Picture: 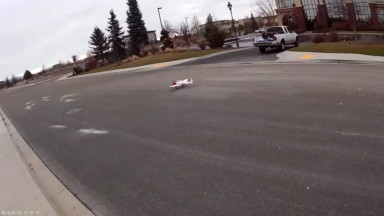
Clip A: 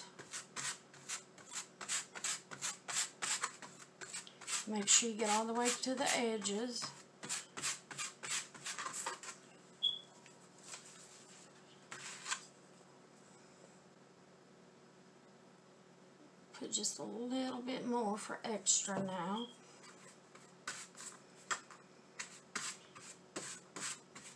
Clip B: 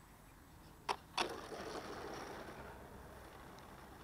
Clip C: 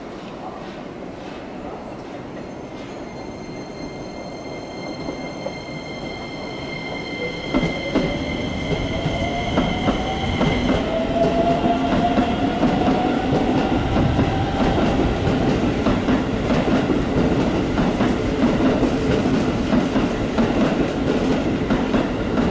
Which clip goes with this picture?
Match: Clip B